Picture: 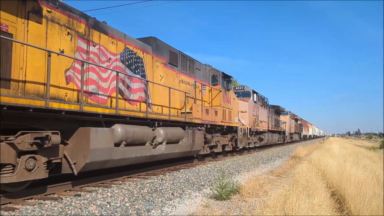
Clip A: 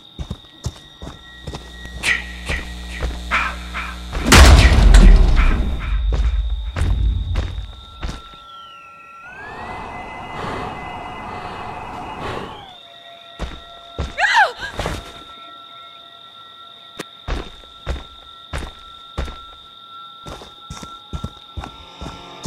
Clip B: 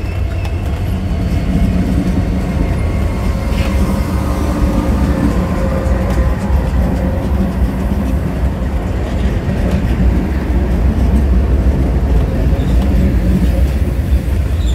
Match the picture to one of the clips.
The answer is B